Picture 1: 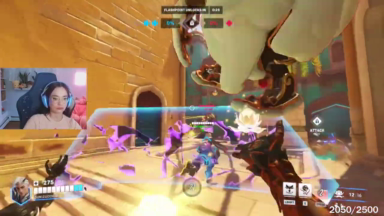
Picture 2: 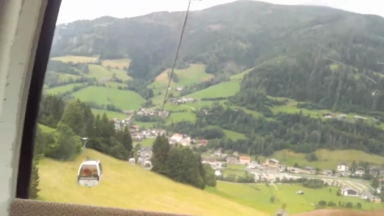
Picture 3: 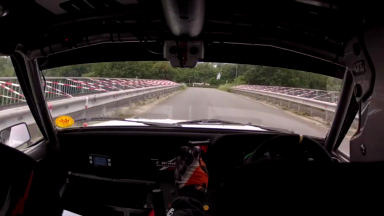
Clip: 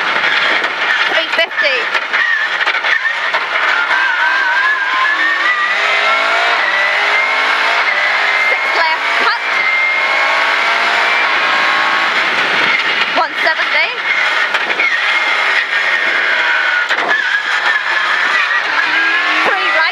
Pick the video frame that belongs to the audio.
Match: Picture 3